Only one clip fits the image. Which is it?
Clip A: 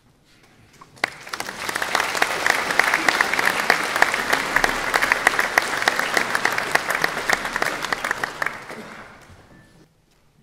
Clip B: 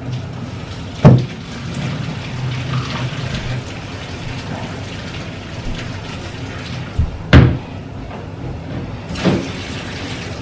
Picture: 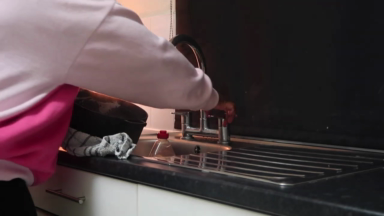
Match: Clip B